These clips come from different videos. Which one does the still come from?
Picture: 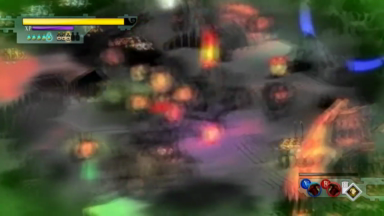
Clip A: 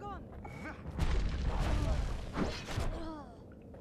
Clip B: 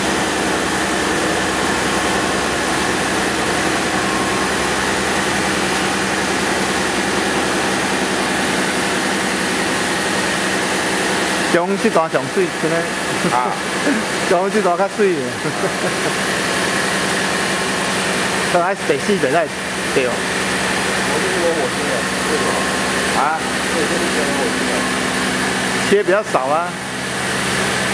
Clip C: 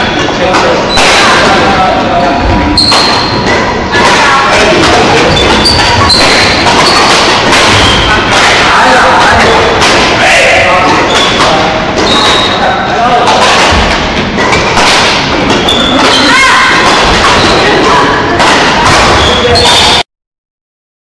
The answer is A